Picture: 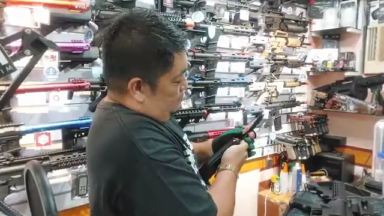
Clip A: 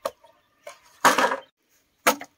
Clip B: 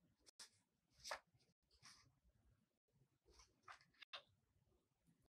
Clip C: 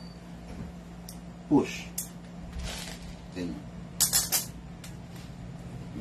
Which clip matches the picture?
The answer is C